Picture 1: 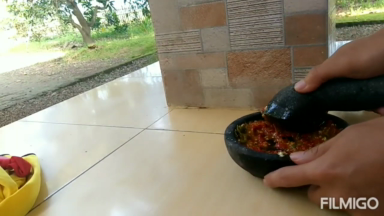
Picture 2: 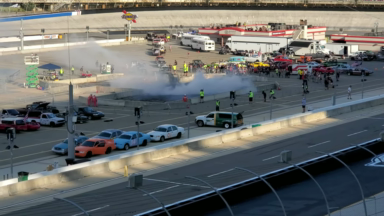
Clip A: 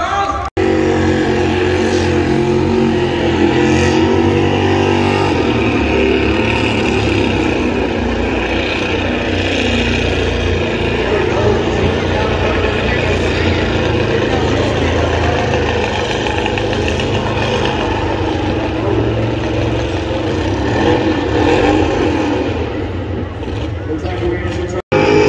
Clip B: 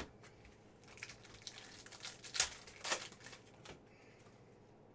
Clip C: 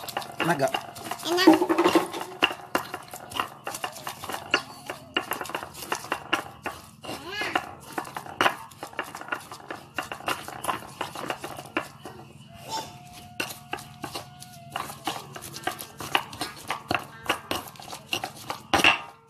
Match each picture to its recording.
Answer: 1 C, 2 A